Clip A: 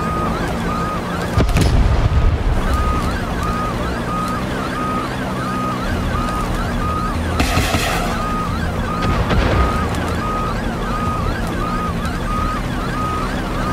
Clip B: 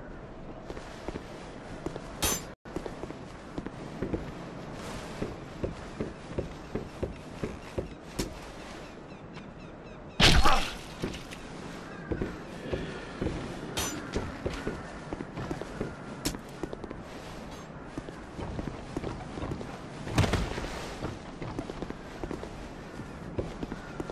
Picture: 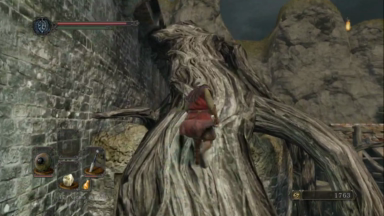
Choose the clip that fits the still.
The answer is B